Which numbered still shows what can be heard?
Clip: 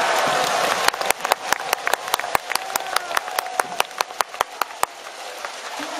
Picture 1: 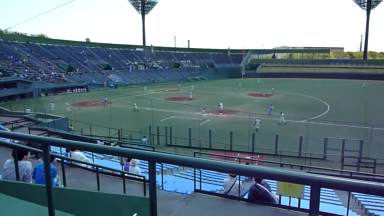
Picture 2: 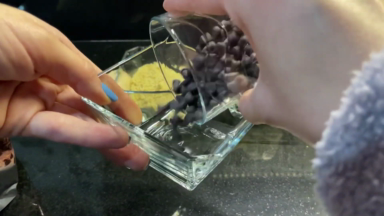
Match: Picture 1